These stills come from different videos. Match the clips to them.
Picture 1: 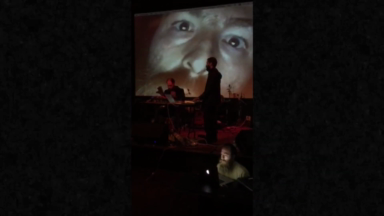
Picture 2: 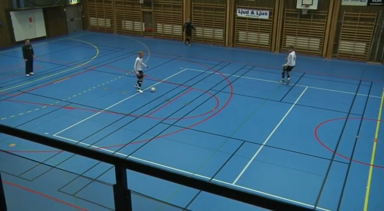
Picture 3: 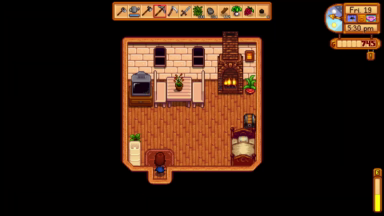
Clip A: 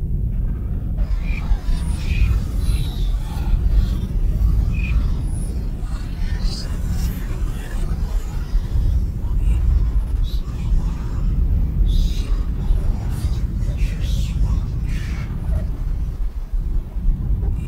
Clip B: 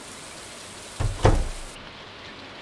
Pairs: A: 1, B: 3